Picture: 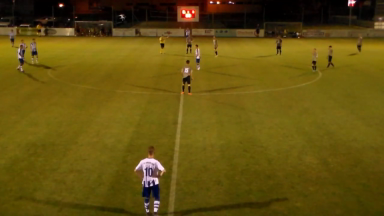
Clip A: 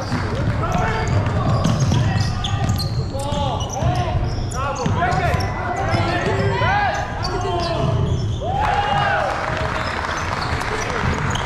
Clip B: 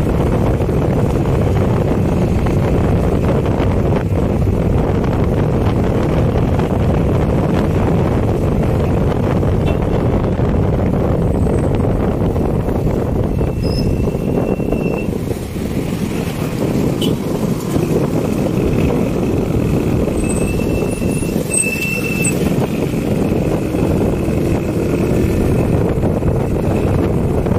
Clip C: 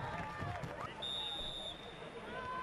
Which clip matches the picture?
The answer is C